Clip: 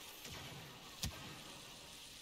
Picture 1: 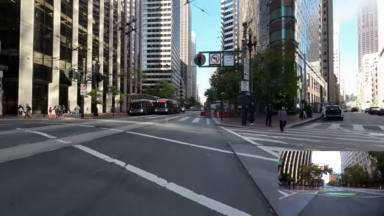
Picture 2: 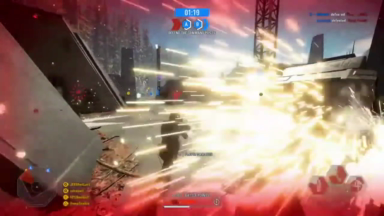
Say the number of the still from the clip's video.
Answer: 2